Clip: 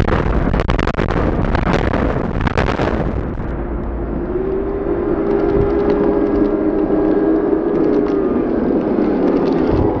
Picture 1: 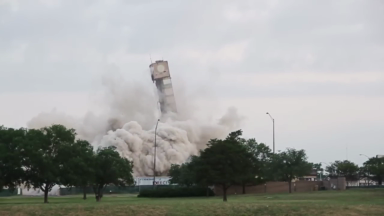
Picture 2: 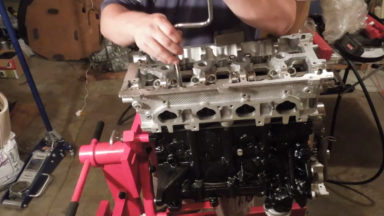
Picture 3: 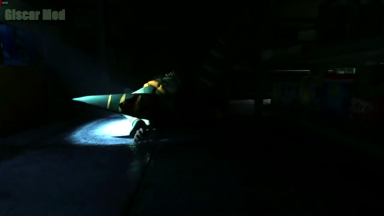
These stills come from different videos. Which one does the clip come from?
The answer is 1